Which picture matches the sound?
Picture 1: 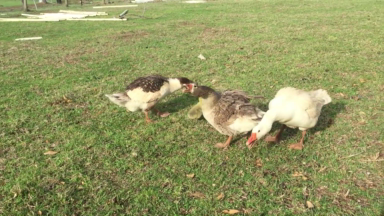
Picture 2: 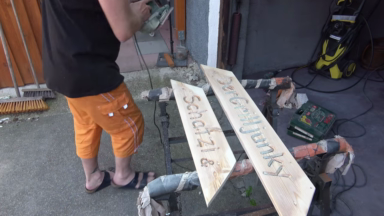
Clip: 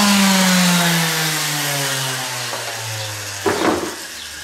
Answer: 2